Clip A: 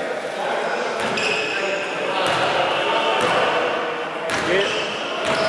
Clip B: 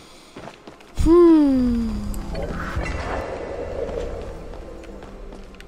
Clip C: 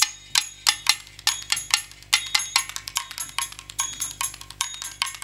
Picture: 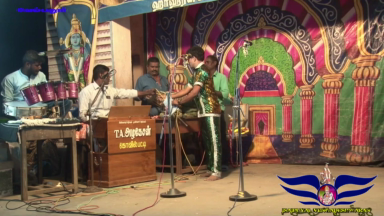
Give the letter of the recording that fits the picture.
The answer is C